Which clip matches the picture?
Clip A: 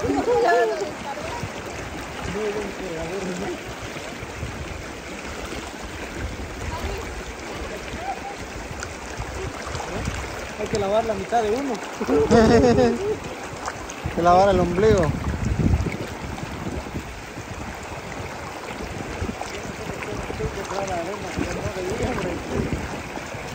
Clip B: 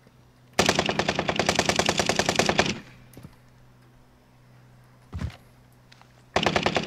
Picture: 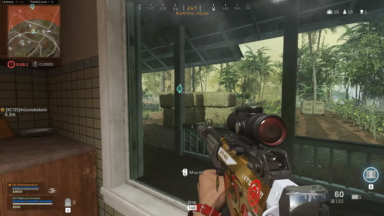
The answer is B